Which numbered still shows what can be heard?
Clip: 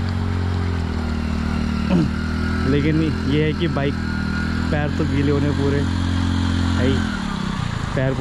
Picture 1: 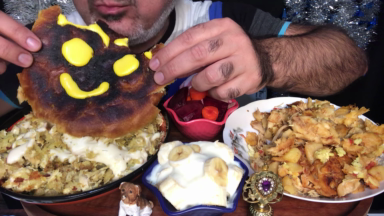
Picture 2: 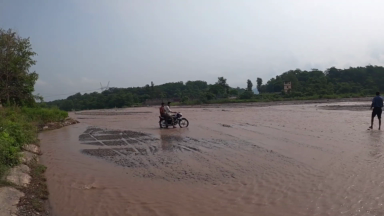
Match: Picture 2